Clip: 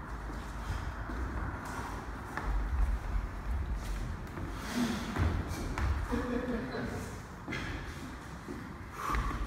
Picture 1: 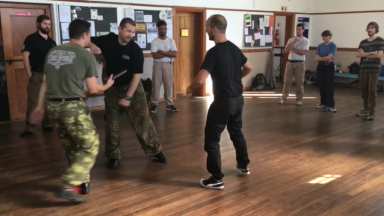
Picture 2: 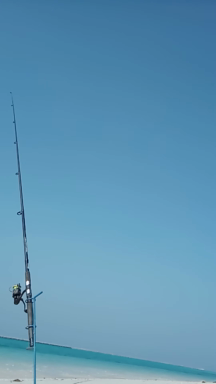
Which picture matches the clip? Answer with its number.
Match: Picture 1